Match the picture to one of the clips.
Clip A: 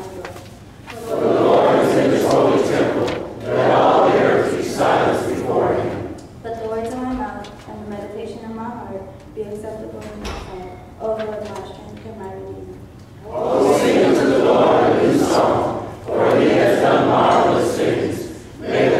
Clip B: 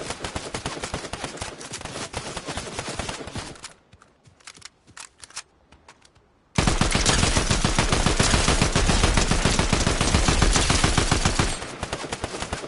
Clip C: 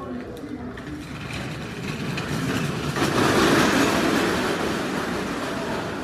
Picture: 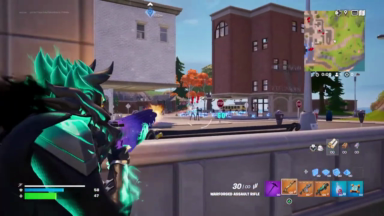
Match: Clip B